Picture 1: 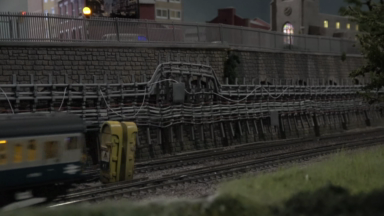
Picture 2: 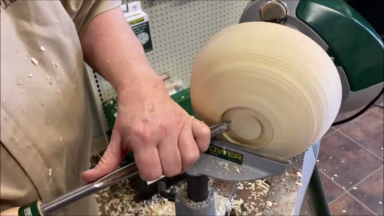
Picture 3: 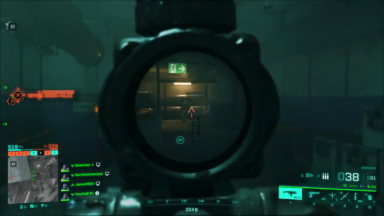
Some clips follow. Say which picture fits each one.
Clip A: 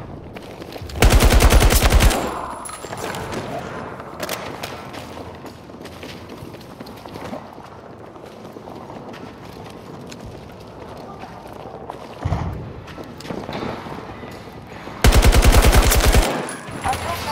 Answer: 3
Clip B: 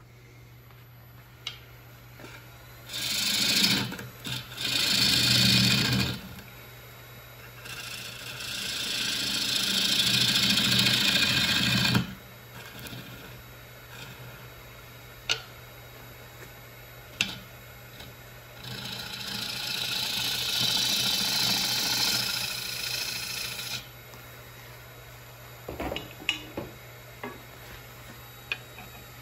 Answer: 2